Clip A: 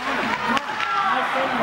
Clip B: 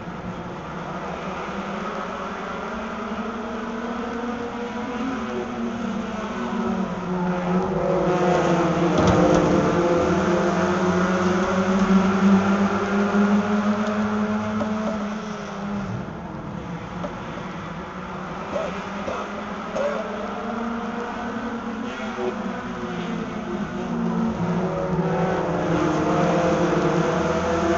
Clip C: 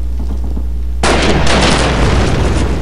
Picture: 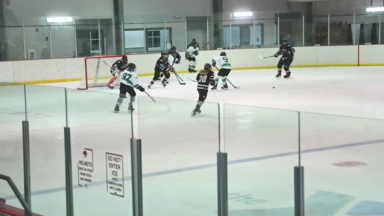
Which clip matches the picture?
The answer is A